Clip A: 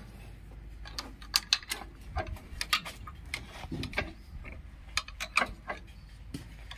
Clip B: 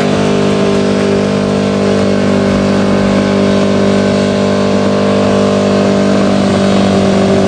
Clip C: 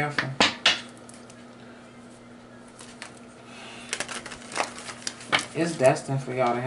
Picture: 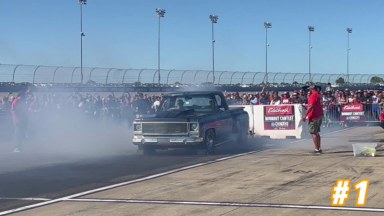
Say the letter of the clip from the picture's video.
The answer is B